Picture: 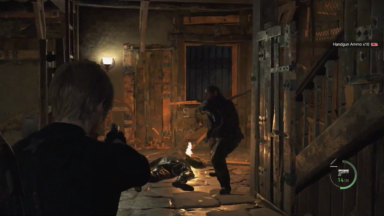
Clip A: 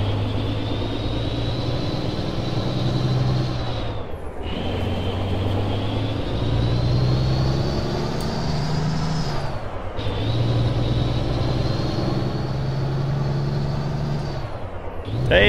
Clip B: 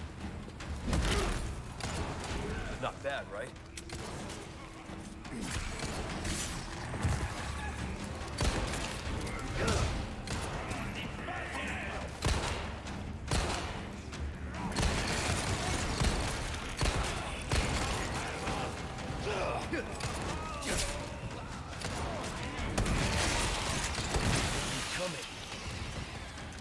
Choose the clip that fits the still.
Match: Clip B